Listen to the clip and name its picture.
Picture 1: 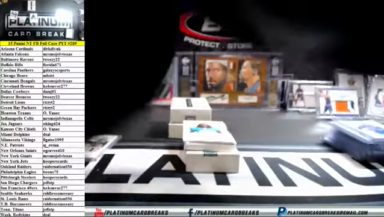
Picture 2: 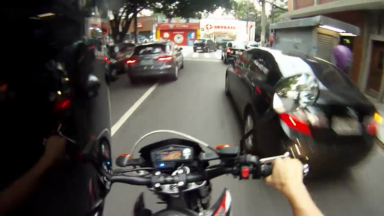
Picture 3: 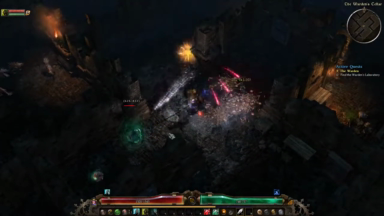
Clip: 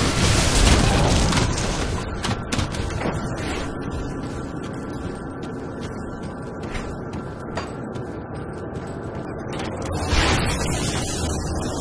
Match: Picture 3